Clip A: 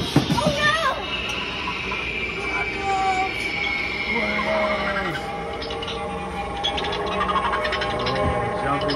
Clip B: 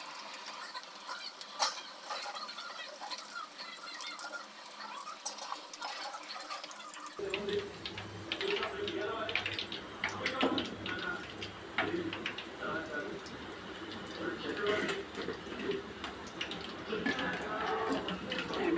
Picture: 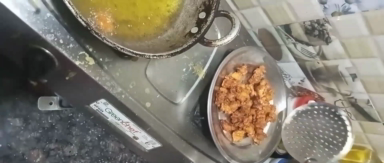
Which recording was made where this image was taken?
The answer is B